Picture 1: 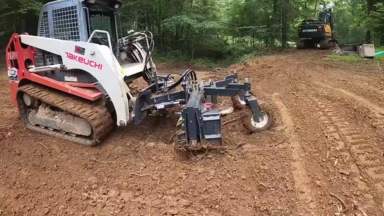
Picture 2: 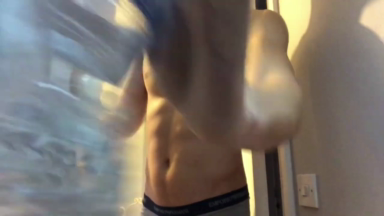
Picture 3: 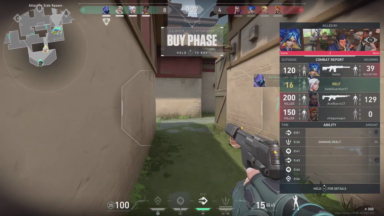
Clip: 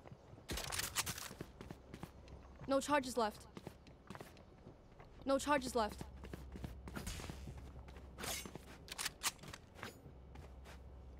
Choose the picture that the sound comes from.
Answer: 3